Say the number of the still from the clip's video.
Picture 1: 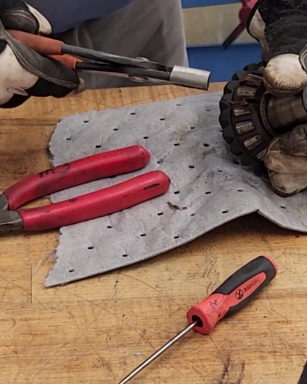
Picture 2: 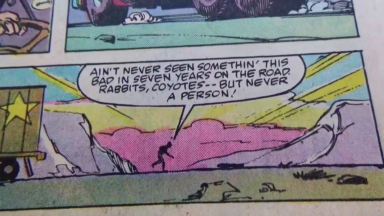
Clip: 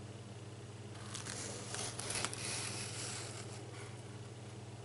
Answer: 2